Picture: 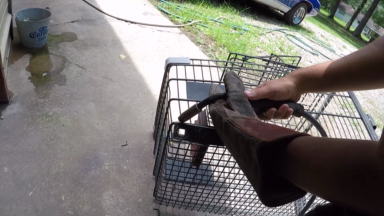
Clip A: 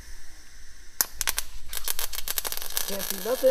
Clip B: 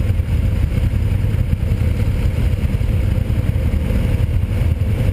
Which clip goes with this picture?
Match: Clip A